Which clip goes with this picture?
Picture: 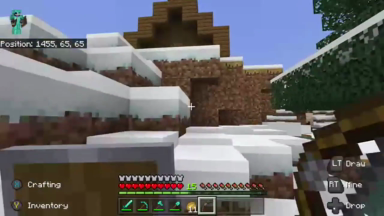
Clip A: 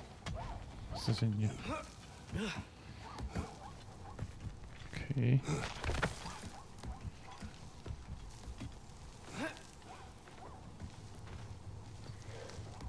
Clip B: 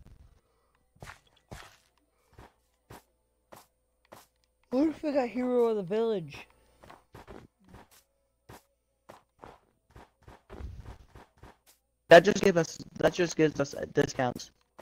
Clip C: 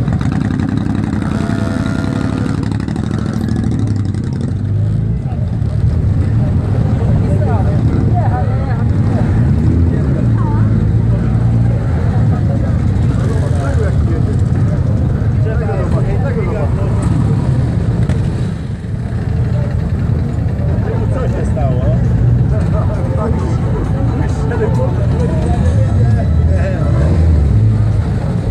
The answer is B